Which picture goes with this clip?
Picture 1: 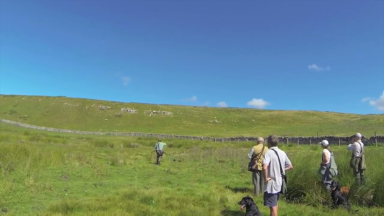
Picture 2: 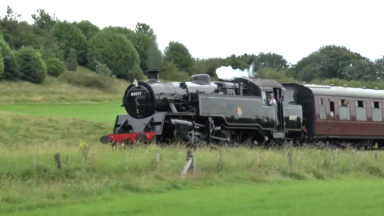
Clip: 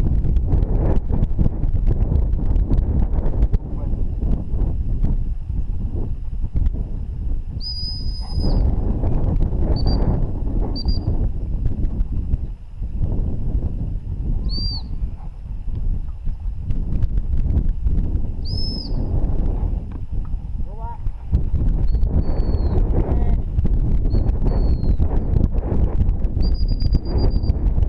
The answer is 1